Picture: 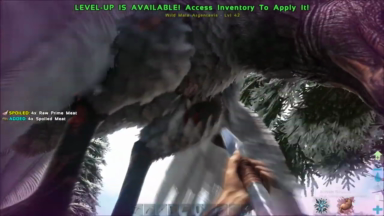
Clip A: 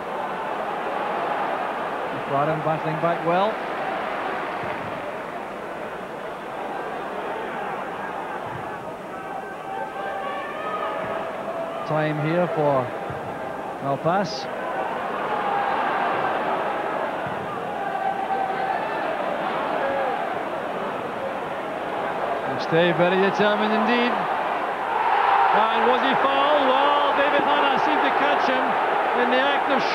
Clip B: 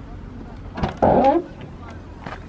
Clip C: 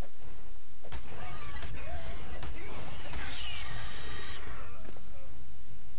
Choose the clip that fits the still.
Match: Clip C